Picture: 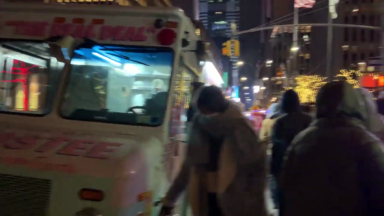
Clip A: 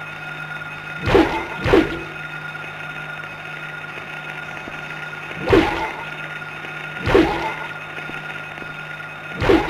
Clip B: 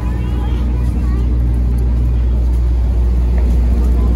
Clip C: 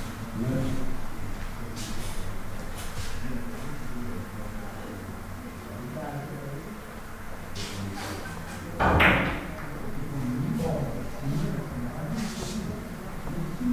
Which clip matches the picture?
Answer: B